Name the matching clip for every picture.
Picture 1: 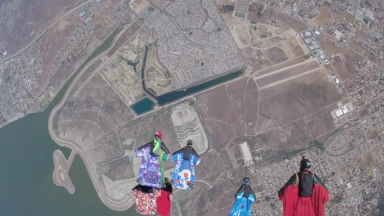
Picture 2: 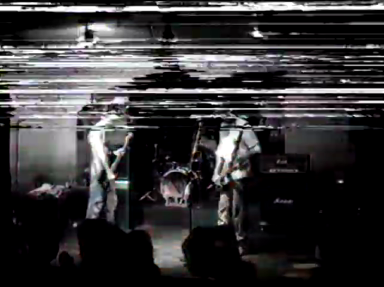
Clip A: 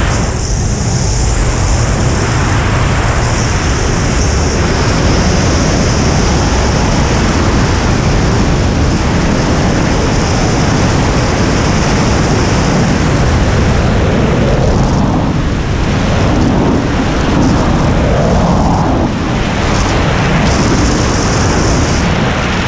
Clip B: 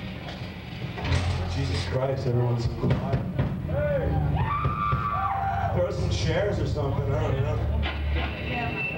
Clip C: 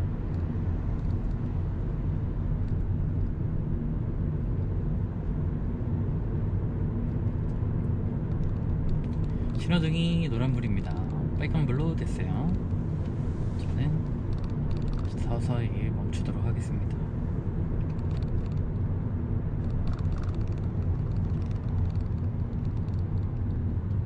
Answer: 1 A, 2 B